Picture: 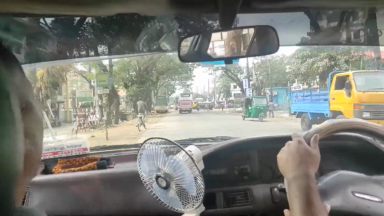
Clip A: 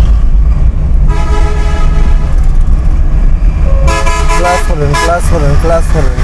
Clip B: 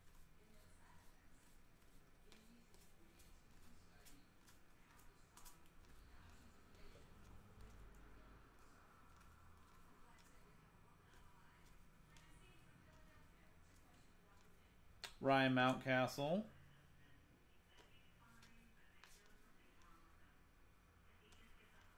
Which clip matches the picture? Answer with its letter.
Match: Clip A